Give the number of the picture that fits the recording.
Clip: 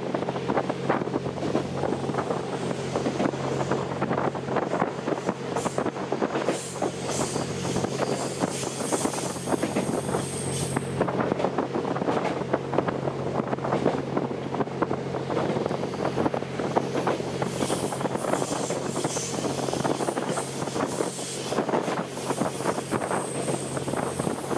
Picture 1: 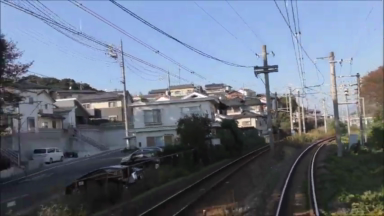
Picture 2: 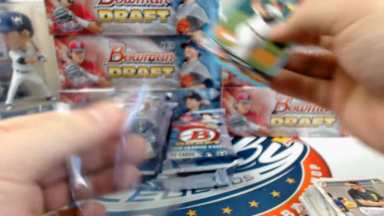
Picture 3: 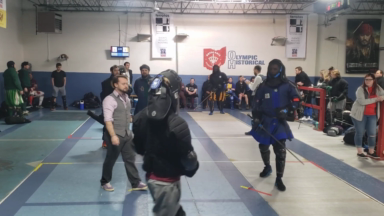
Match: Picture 1